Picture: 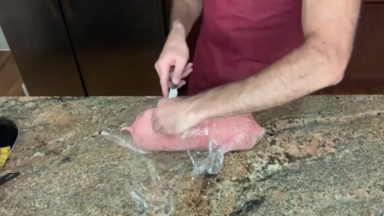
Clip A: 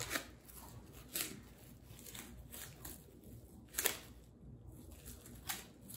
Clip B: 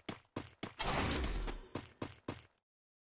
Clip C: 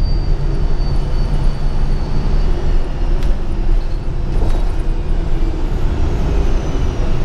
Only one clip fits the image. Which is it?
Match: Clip A